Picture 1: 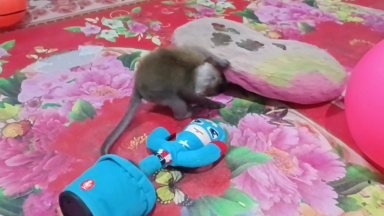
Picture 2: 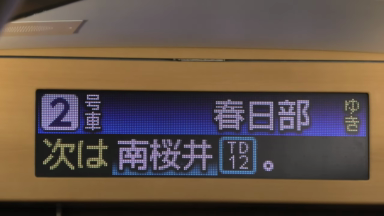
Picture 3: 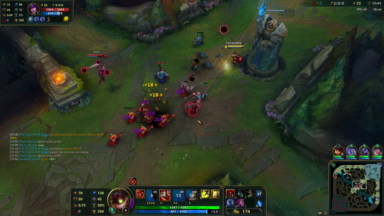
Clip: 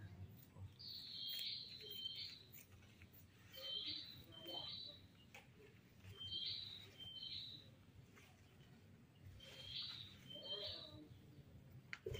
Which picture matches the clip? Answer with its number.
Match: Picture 1